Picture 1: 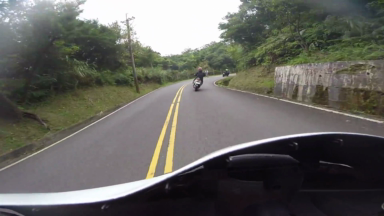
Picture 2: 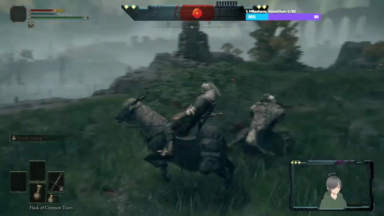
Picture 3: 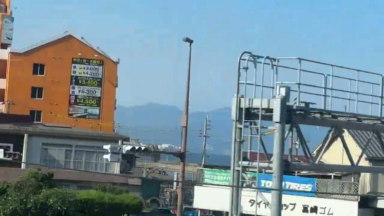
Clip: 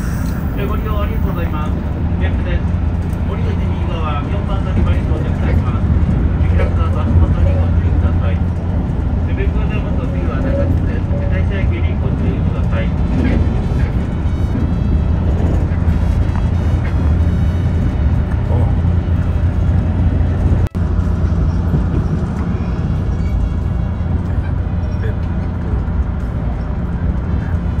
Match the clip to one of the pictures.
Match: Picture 3